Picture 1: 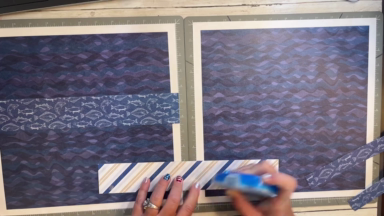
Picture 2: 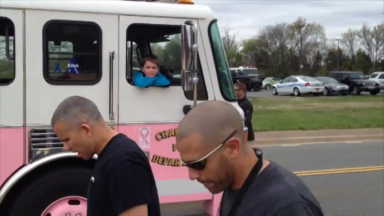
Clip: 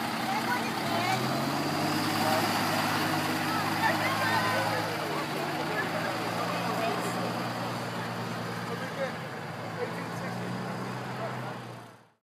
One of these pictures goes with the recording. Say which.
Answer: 2